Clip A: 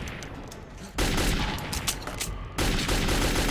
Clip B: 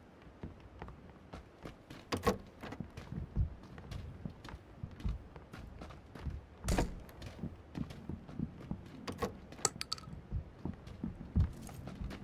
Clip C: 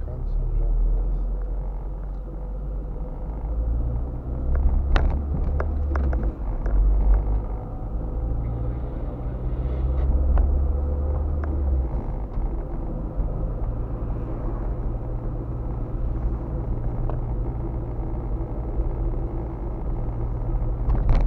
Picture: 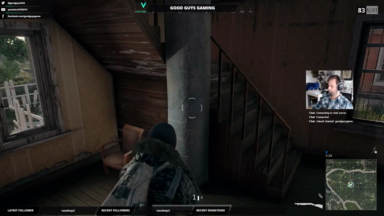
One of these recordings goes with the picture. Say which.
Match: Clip B